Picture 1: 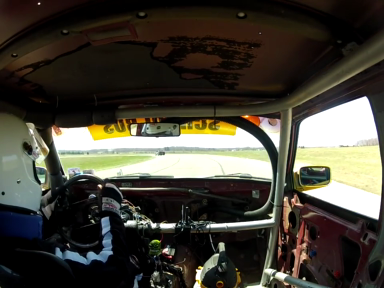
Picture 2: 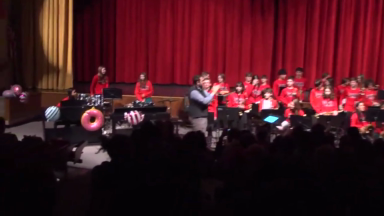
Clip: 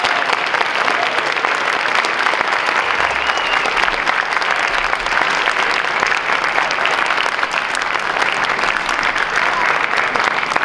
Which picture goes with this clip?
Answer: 2